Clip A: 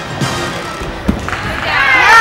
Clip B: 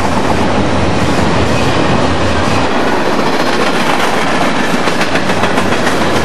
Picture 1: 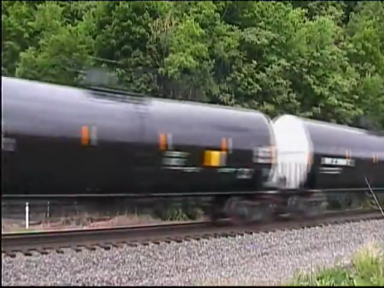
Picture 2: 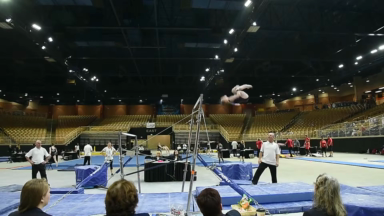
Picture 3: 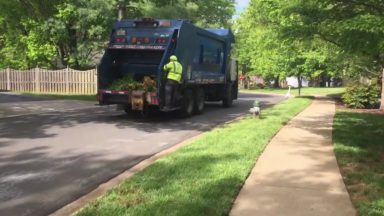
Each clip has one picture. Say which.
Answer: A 2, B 1